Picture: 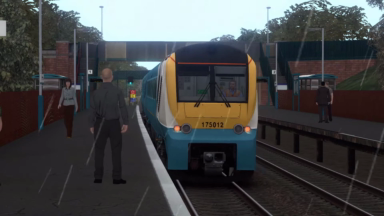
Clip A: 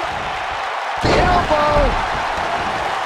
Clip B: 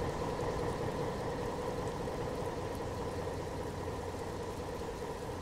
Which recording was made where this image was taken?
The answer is B